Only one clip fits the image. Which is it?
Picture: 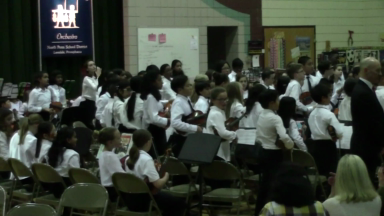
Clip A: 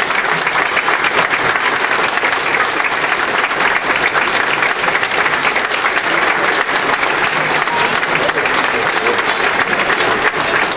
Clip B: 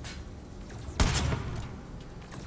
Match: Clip A